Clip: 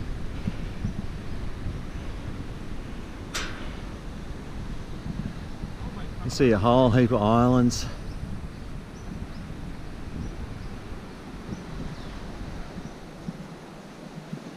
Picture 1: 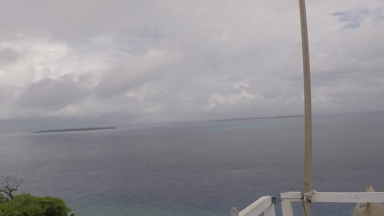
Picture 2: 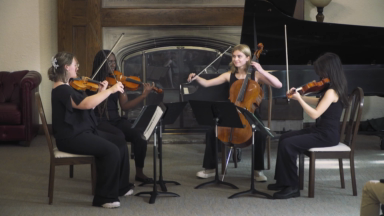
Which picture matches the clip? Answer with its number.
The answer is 1